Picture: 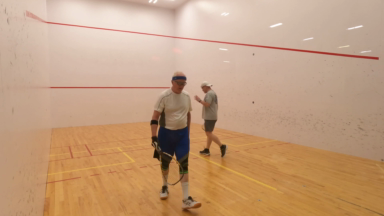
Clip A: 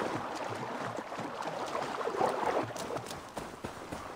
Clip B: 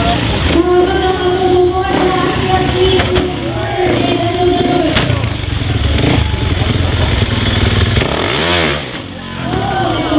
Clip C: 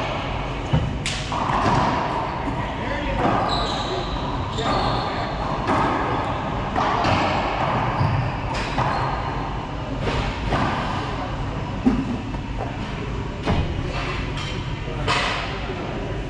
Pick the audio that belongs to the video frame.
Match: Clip C